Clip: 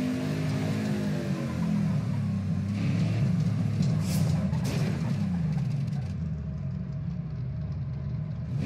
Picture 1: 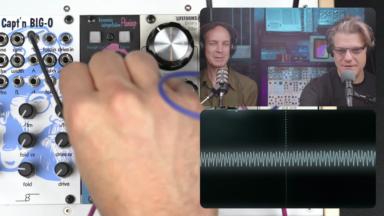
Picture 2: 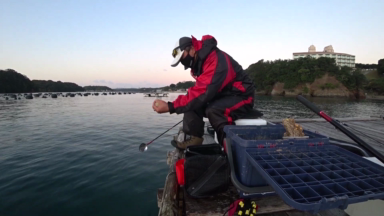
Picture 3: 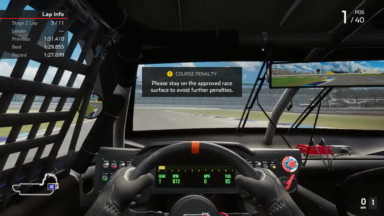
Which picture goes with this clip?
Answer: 3